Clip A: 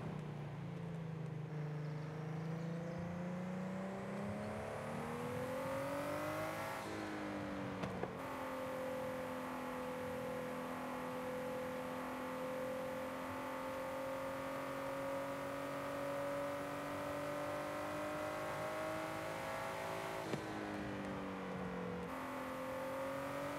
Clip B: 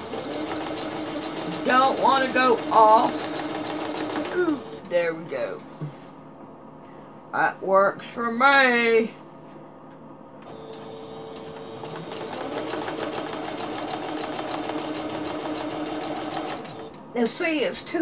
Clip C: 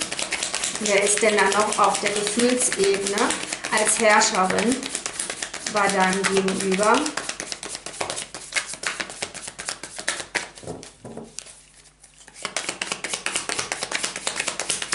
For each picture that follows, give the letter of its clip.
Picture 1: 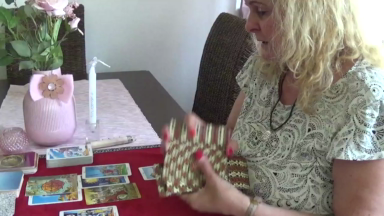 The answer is C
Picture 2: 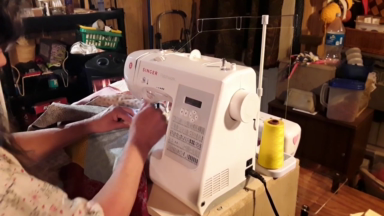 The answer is B